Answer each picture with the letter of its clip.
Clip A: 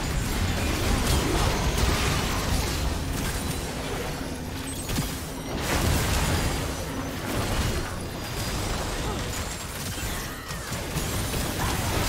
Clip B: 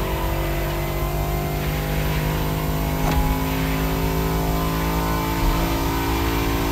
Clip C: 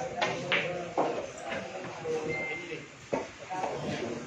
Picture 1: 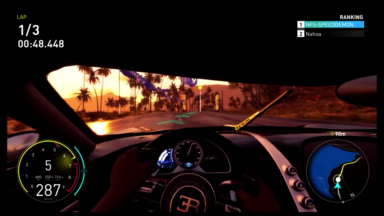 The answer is B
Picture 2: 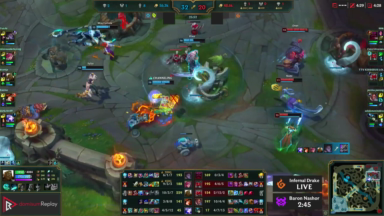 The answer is A